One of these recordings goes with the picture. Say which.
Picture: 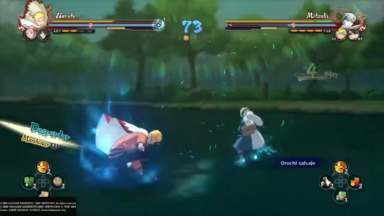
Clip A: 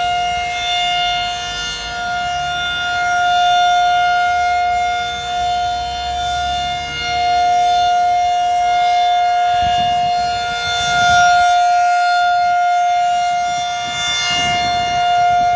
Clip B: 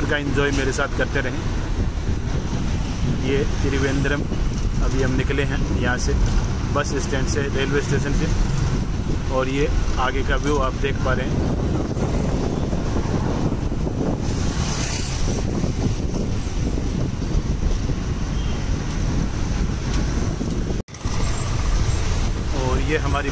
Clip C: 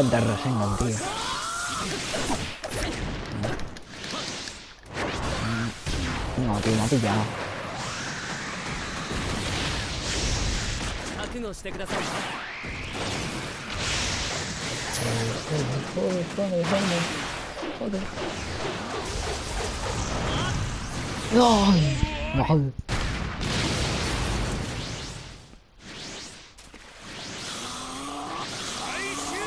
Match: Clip C